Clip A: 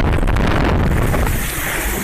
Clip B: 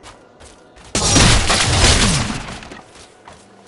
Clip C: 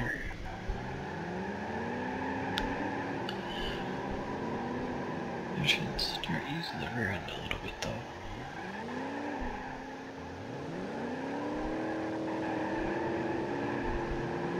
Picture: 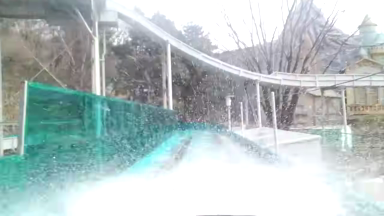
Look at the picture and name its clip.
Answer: A